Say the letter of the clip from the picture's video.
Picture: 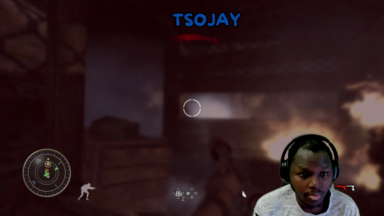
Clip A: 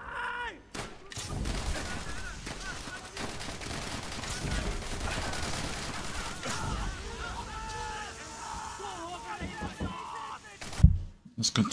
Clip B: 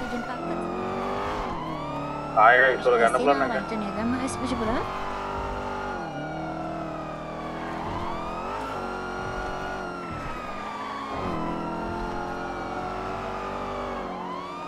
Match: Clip A